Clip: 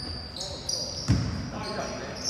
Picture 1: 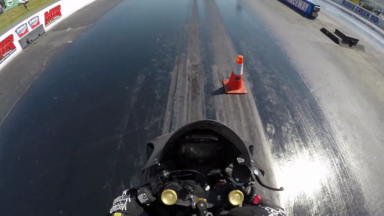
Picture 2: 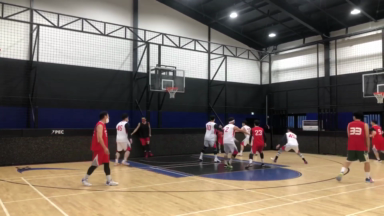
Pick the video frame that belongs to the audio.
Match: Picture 2